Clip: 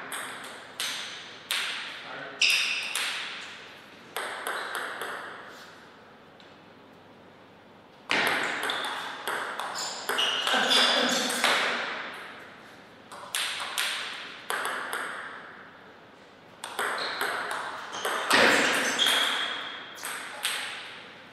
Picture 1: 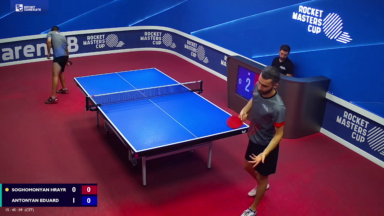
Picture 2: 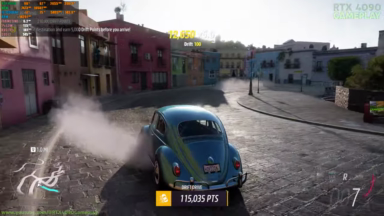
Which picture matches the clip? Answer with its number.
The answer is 1